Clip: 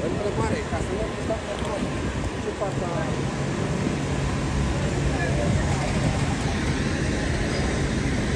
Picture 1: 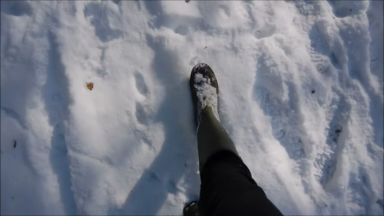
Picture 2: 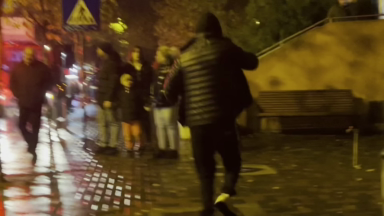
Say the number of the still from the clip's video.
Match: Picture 2